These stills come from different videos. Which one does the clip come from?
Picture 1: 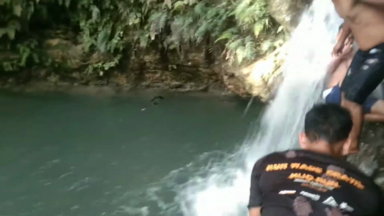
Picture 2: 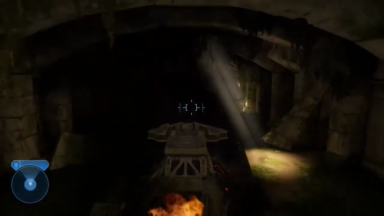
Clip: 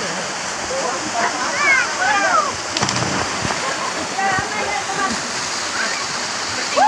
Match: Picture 1